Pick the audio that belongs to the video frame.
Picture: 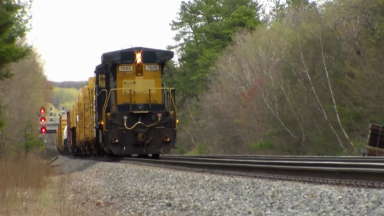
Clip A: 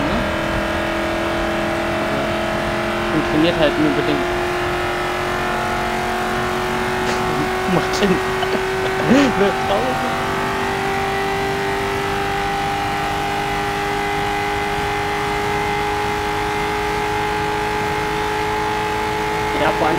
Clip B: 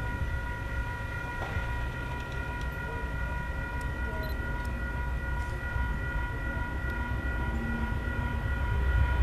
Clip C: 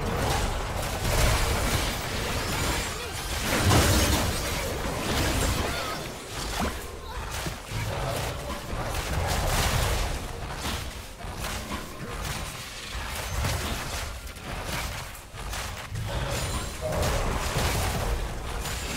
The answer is B